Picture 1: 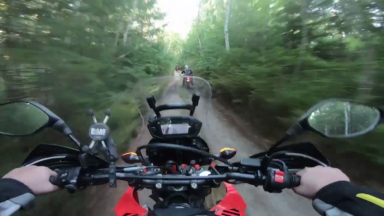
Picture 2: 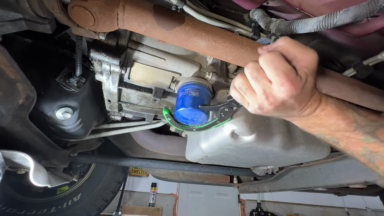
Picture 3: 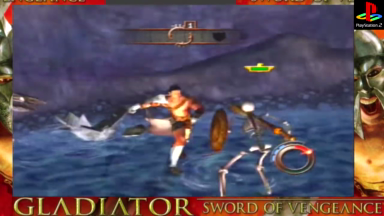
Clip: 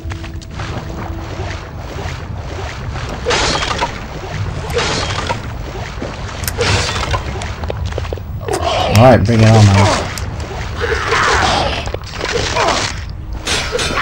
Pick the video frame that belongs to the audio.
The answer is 3